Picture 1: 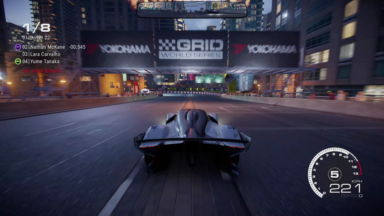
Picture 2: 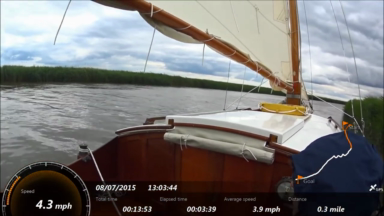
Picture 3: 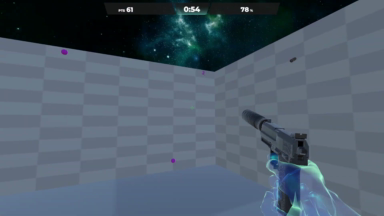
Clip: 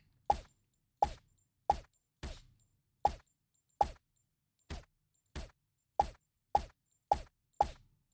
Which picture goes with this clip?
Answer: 3